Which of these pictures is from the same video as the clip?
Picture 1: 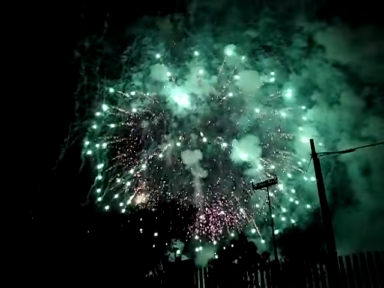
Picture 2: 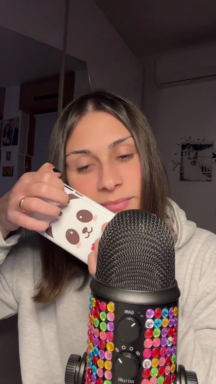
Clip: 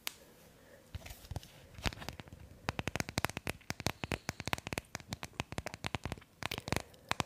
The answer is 2